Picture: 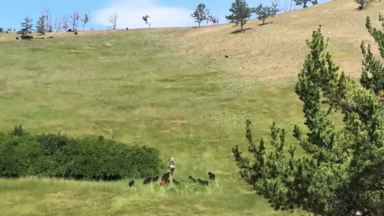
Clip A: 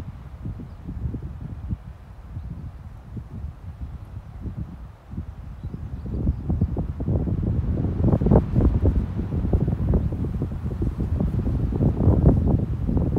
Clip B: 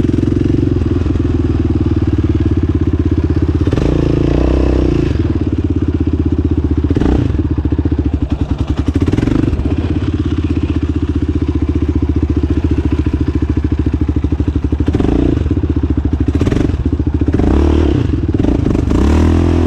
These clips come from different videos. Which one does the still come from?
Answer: A